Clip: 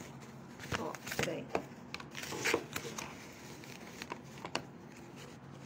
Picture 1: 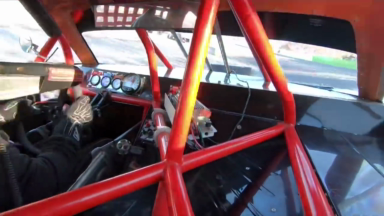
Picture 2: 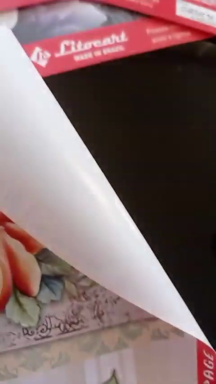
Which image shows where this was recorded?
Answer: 2